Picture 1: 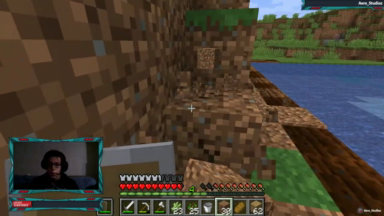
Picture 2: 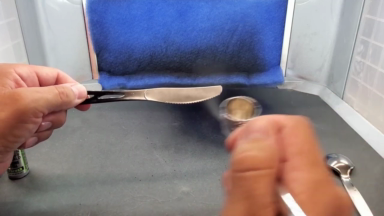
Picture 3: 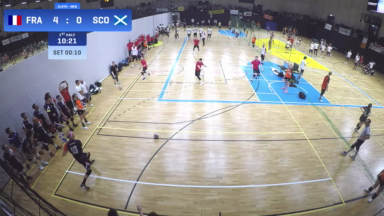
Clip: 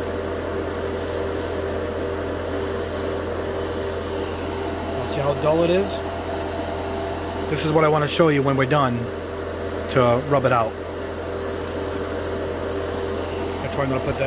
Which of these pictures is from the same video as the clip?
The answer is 2